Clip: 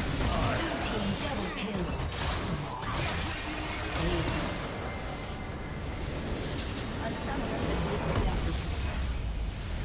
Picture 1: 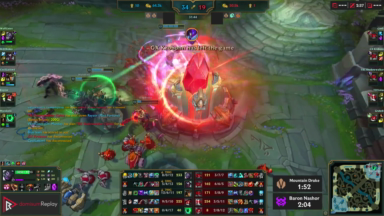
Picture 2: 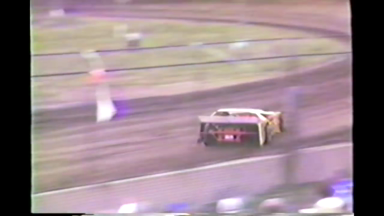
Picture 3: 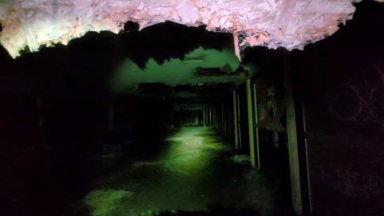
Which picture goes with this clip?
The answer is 1